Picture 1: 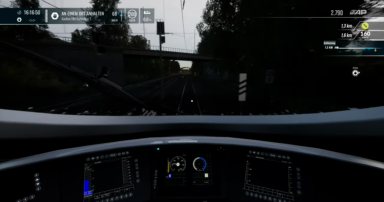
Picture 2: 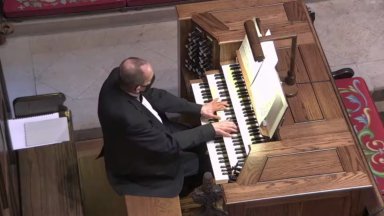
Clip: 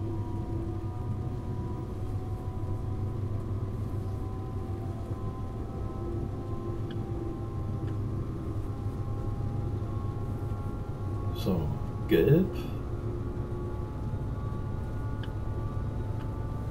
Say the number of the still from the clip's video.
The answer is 1